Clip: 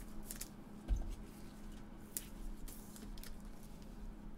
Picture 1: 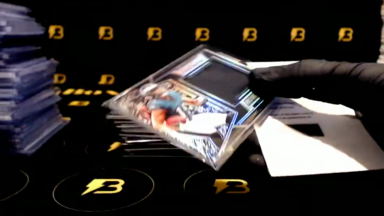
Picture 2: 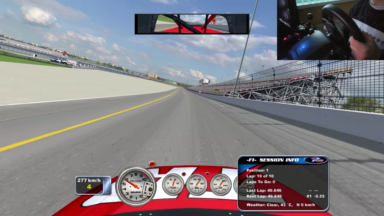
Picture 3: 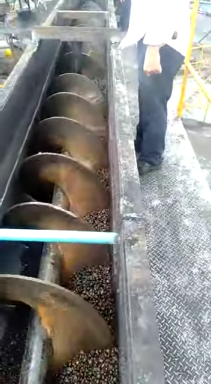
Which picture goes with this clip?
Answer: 1